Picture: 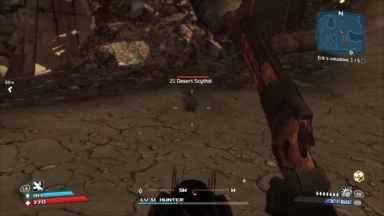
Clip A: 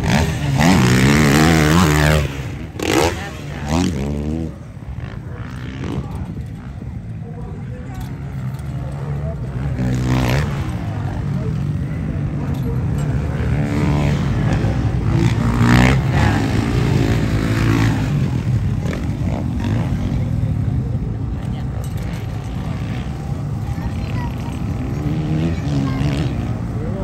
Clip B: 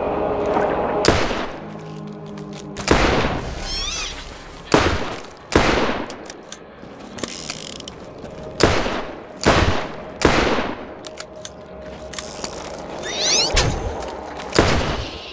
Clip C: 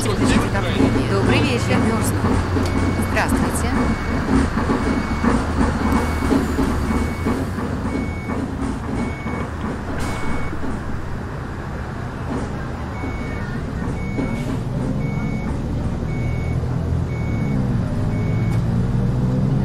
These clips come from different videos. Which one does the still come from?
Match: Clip B